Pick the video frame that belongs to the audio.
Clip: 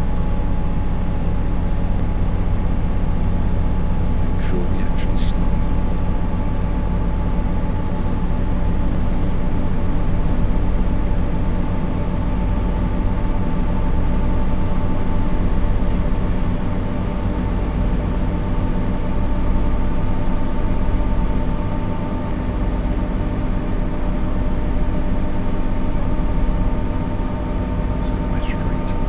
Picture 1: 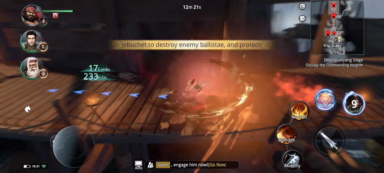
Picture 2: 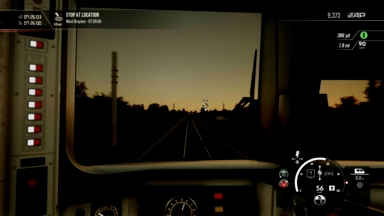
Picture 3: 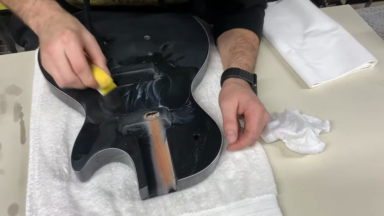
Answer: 2